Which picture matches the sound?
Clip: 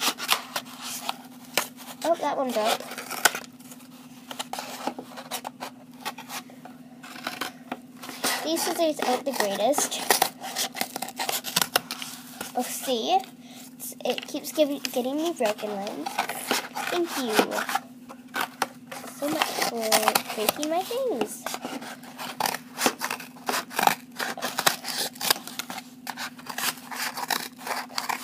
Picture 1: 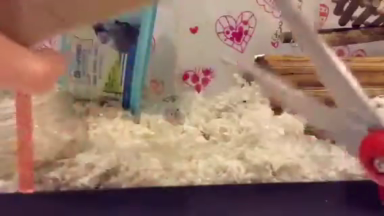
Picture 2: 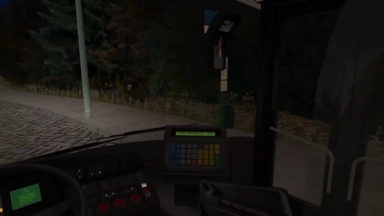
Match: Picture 1